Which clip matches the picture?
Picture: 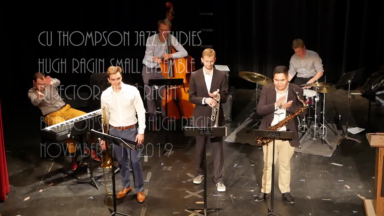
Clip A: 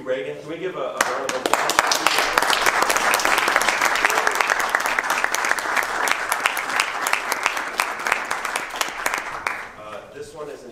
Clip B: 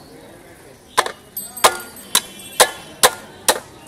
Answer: A